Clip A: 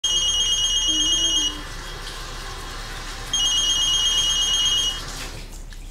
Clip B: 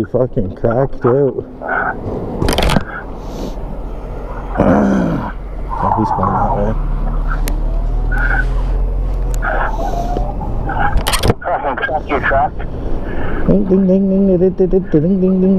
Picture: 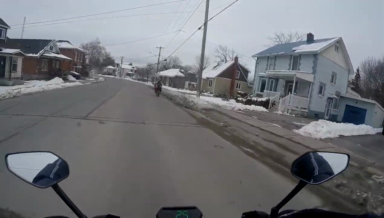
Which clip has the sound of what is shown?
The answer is B